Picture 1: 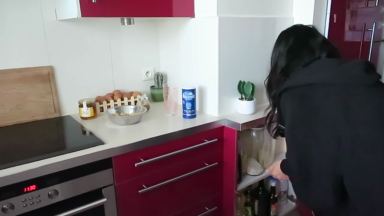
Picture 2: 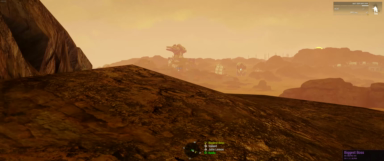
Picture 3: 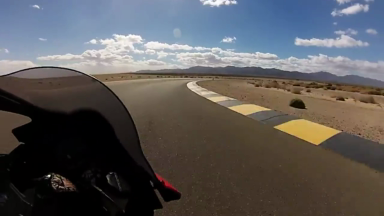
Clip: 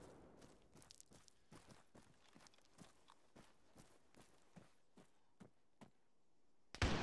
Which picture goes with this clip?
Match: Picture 2